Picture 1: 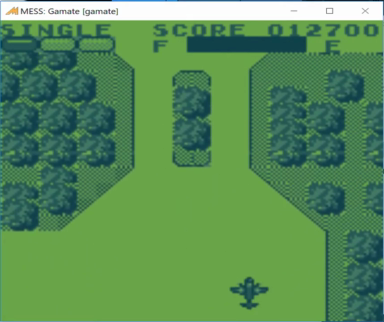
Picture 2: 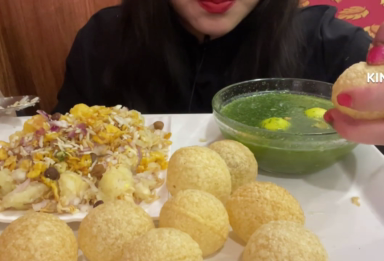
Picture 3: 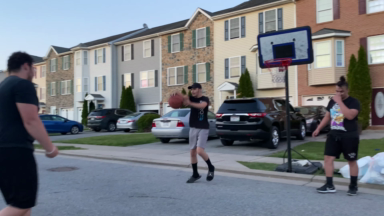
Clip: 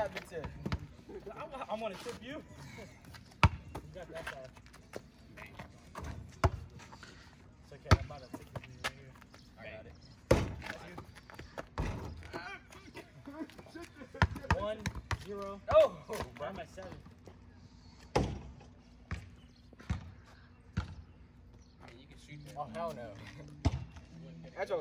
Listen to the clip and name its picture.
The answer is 3